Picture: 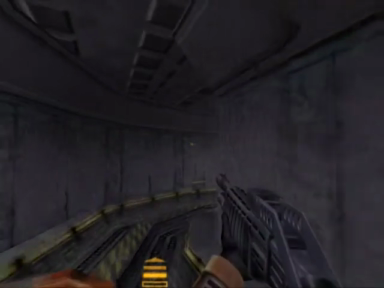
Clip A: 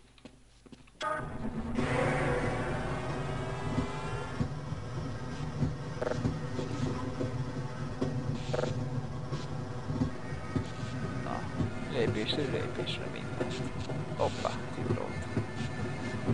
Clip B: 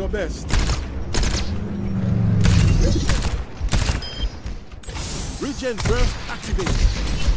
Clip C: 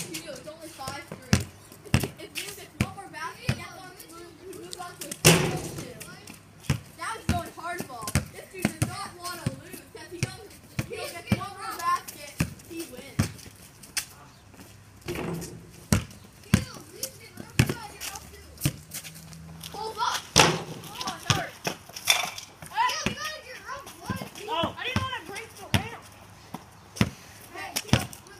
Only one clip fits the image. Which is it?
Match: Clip A